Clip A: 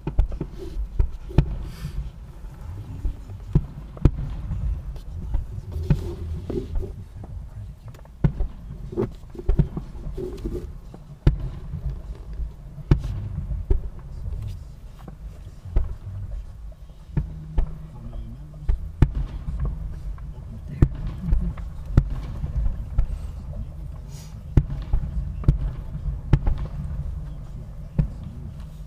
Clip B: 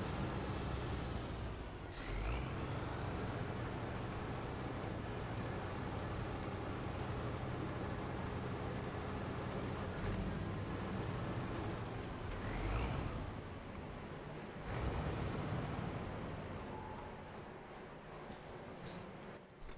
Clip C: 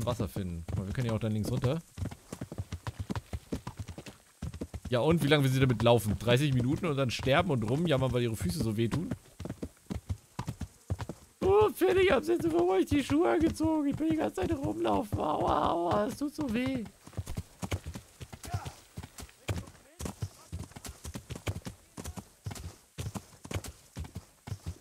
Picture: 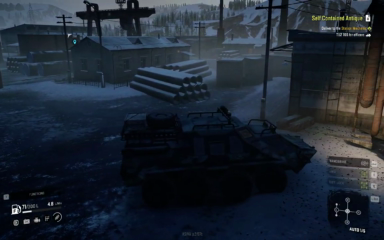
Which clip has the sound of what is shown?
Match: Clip B